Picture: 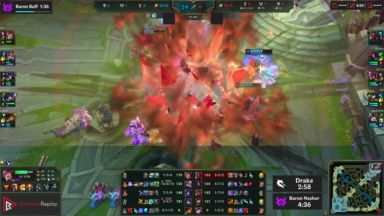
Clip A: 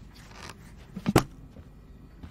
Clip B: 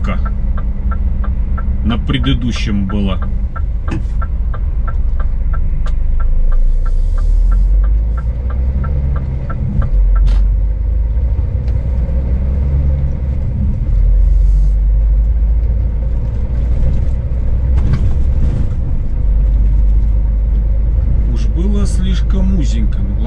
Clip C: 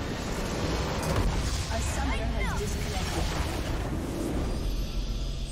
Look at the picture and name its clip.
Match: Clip C